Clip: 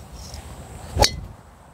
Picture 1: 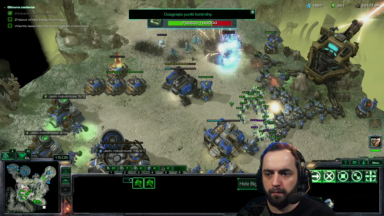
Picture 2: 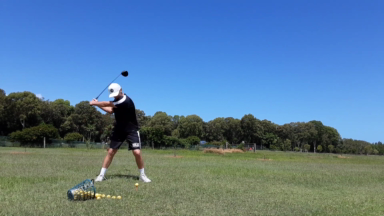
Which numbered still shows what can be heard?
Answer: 2